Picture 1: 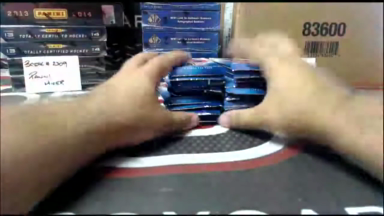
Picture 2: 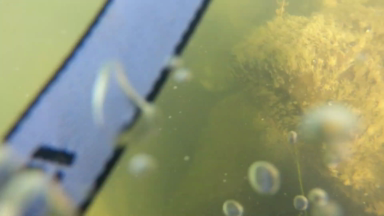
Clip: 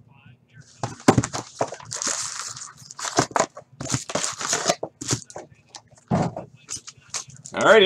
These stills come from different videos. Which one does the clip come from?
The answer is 1